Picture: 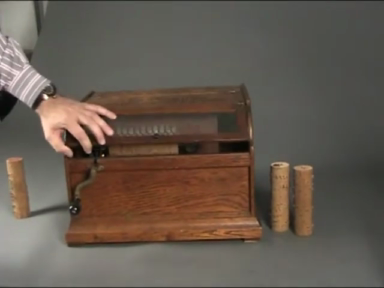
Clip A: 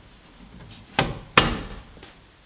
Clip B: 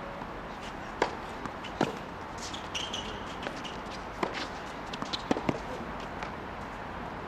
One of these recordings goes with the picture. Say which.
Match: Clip A